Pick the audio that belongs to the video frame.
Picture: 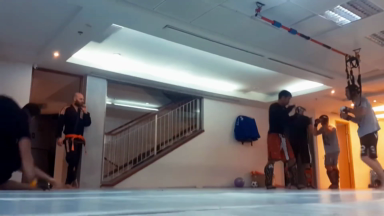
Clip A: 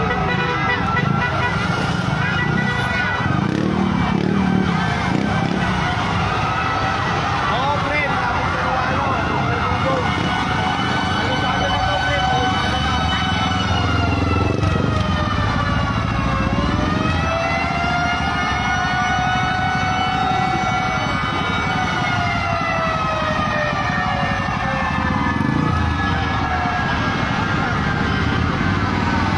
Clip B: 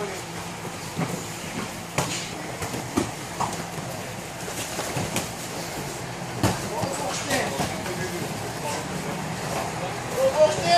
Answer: B